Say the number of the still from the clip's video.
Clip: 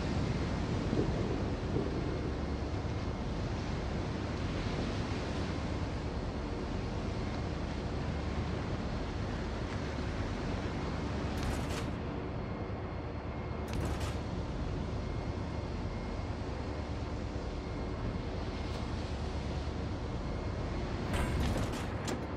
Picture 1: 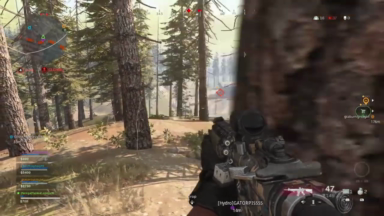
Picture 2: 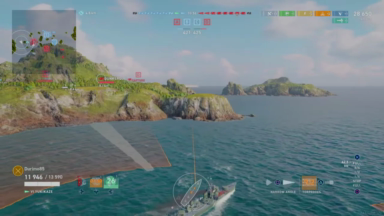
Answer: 2